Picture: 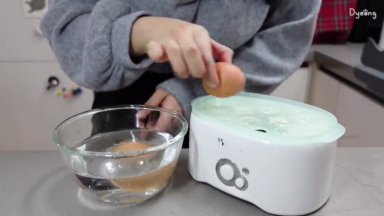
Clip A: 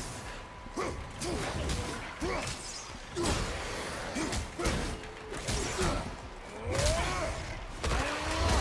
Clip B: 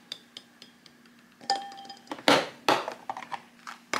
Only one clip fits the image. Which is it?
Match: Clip B